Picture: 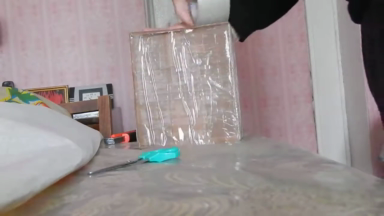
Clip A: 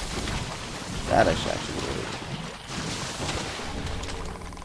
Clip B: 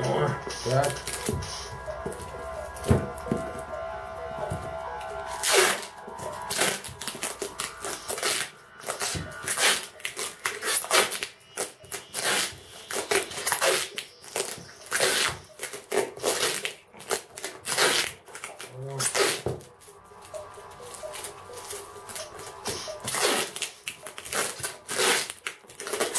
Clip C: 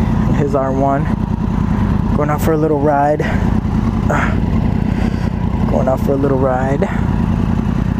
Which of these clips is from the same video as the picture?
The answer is B